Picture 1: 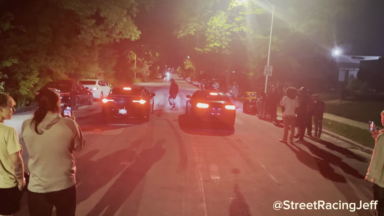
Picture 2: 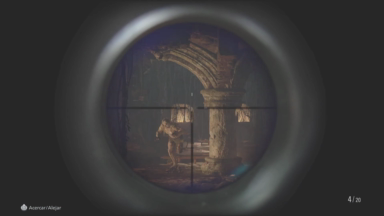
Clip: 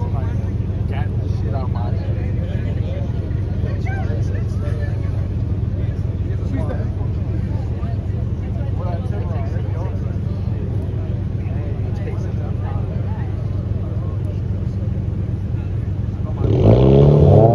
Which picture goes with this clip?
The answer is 1